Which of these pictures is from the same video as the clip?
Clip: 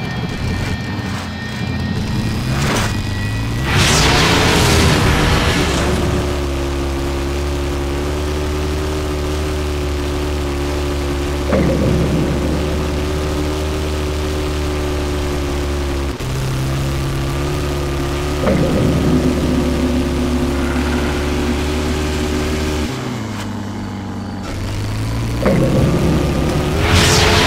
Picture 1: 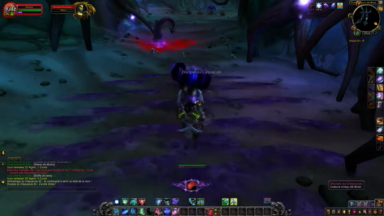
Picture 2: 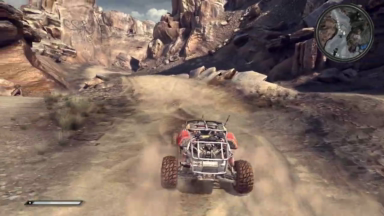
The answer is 2